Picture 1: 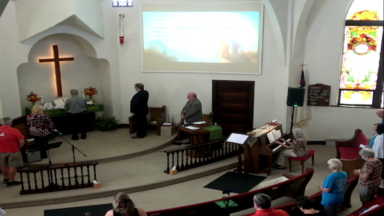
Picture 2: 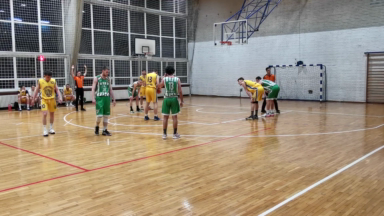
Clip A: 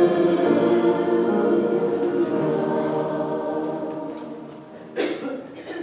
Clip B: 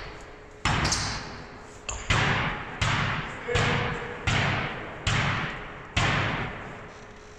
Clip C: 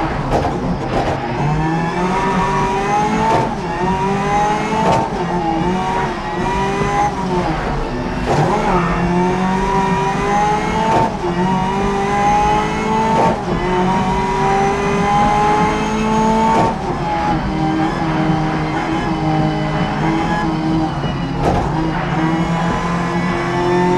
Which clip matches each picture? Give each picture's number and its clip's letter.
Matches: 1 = A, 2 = B